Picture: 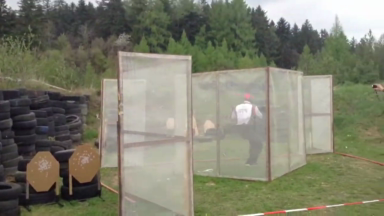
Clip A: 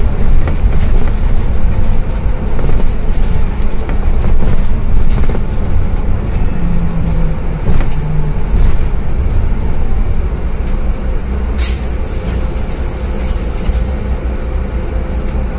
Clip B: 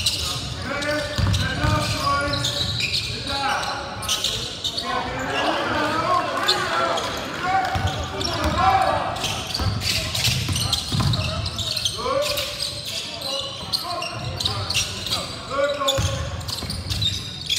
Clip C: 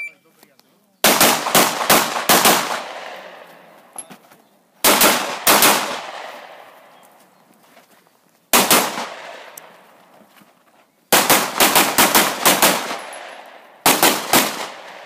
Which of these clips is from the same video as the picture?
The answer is C